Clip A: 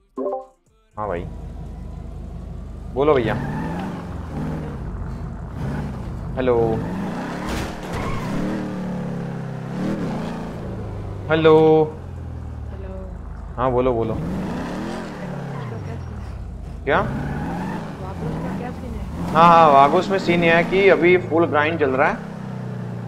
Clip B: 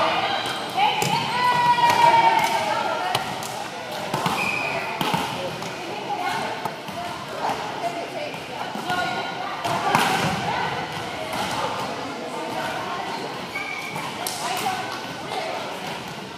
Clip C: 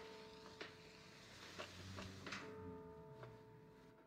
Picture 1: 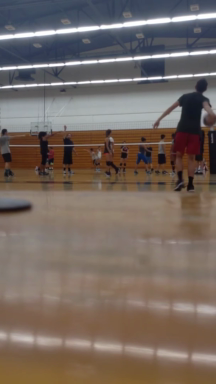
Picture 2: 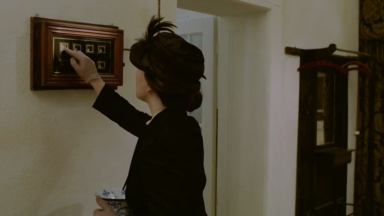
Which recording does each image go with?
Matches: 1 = B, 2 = C